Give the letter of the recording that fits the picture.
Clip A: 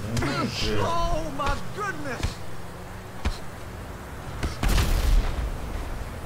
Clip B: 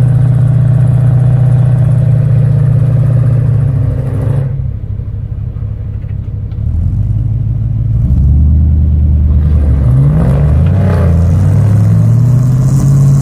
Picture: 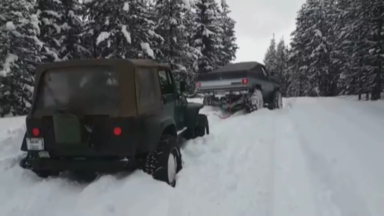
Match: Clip B